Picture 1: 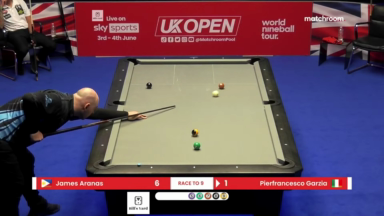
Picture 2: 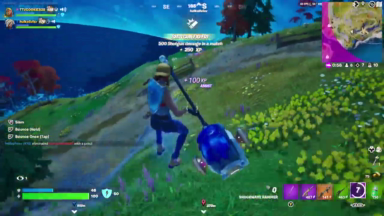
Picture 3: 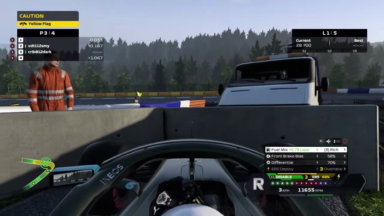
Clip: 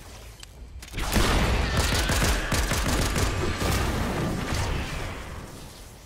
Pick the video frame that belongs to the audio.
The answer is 2